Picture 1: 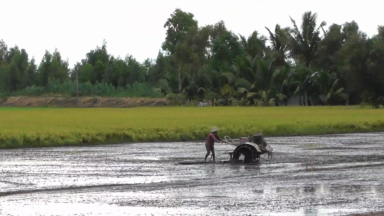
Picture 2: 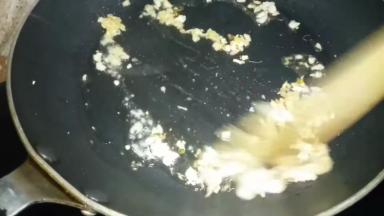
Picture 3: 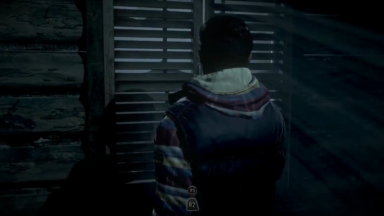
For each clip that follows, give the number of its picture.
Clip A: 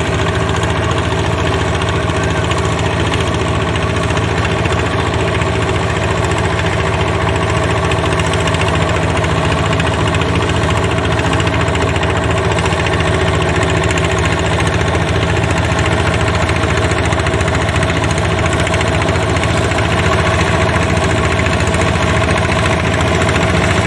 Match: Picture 1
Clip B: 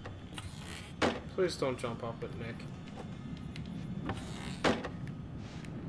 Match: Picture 3